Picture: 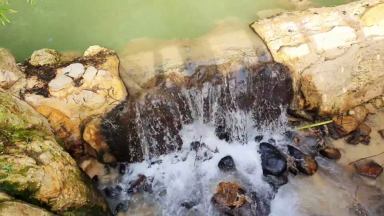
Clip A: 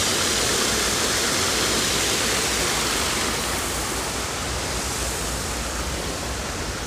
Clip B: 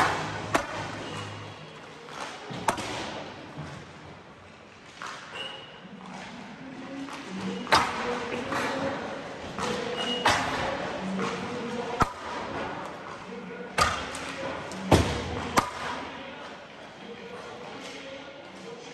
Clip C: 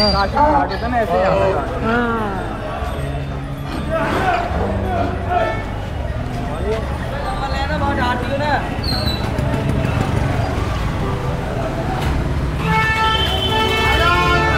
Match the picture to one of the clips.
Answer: A